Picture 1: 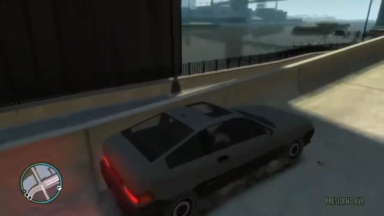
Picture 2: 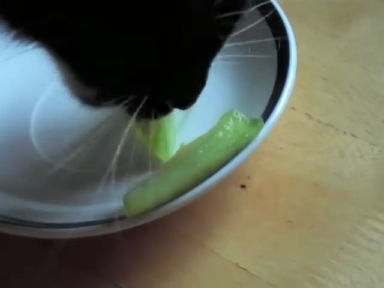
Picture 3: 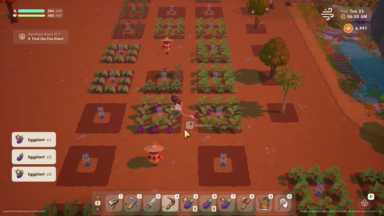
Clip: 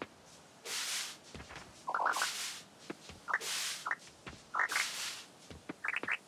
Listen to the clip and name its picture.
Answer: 3